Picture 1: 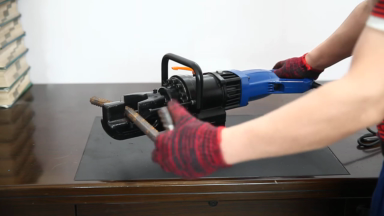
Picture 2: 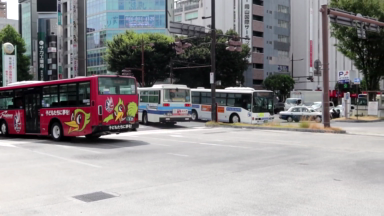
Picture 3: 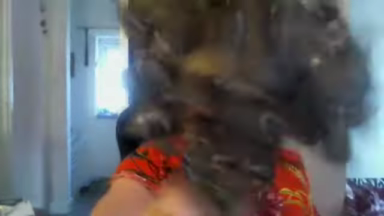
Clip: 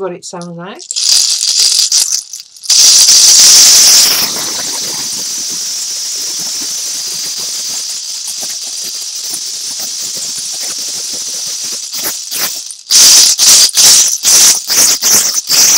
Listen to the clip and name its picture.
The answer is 3